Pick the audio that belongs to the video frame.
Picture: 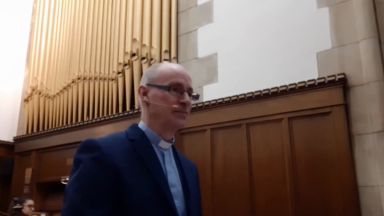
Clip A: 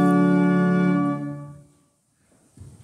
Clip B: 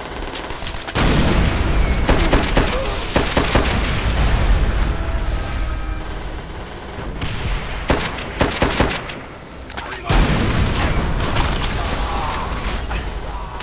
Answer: A